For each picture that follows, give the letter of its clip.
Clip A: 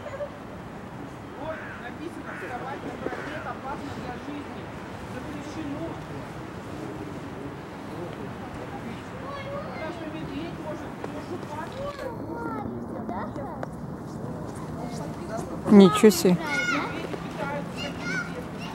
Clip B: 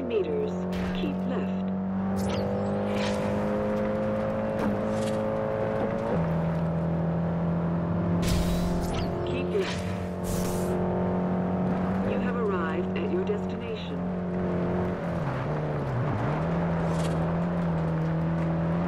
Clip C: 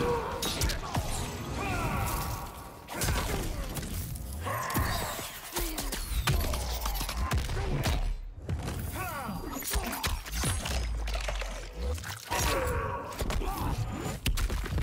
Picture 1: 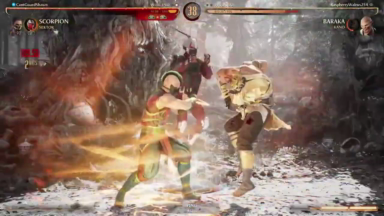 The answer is C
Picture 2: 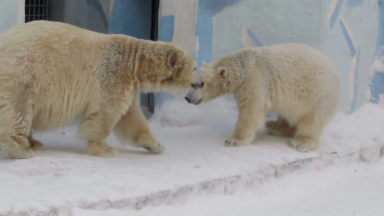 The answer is A